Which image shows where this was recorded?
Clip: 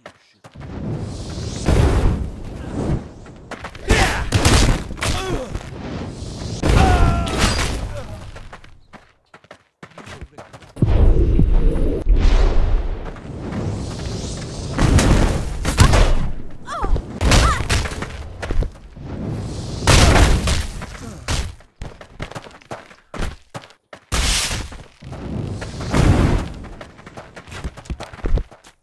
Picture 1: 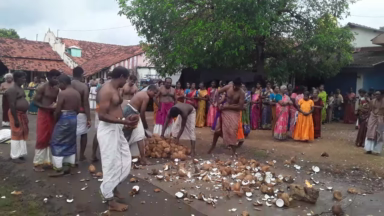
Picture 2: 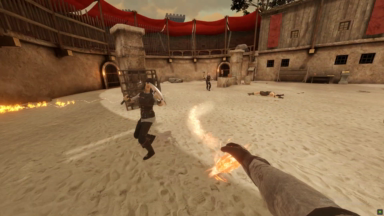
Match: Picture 2